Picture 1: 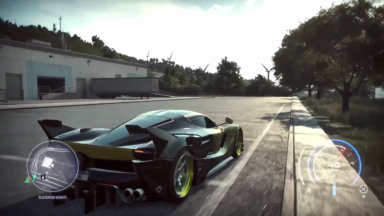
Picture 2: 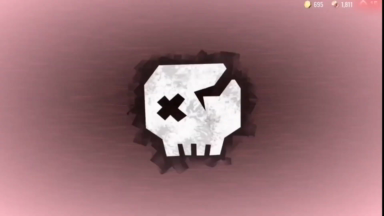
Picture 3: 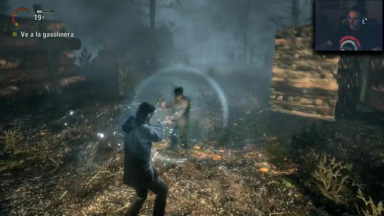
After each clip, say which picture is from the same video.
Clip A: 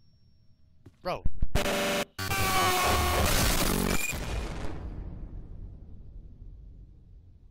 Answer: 2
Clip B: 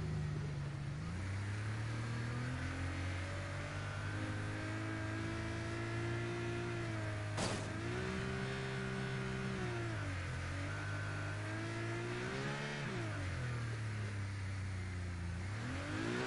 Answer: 1